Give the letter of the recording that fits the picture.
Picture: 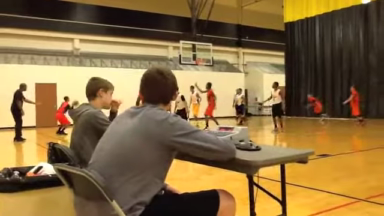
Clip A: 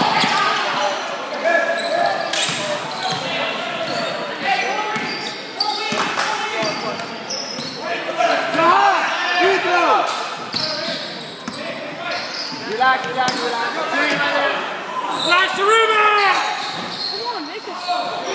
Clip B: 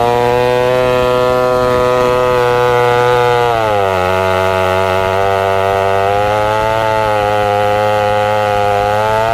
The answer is A